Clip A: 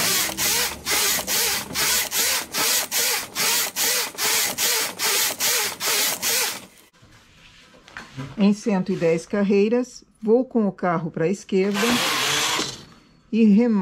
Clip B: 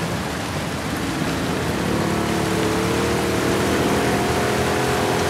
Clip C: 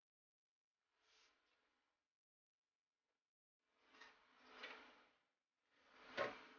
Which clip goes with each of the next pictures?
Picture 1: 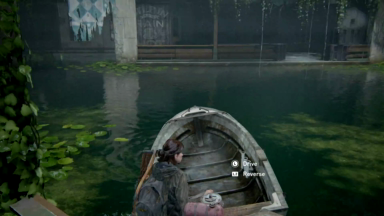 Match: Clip B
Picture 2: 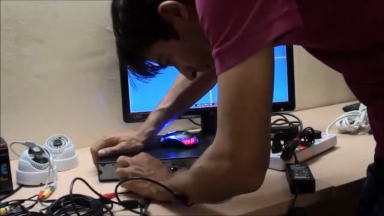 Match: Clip C